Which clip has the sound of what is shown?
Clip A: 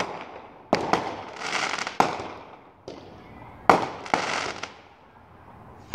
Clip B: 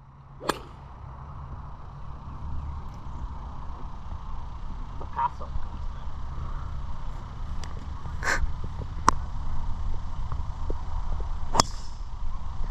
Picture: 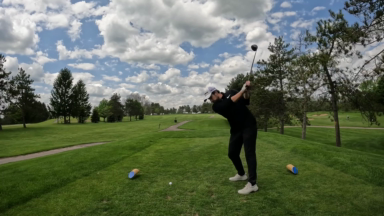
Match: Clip B